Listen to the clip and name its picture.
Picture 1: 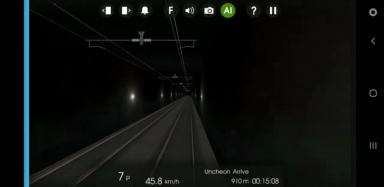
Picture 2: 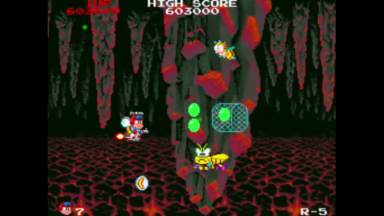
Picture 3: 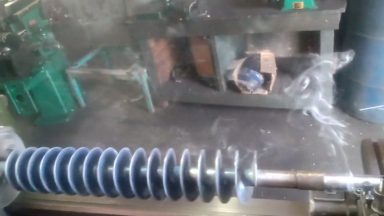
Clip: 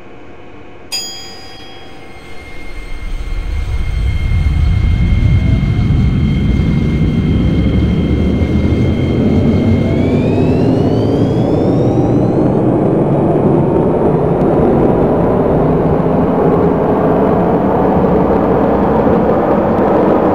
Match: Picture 1